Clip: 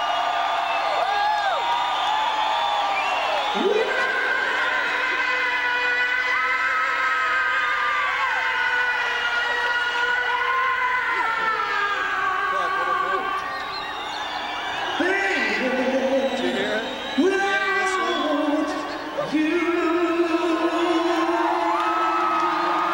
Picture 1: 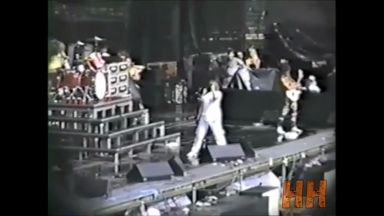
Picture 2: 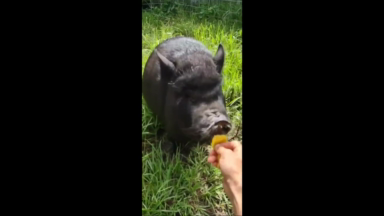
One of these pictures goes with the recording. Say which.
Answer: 1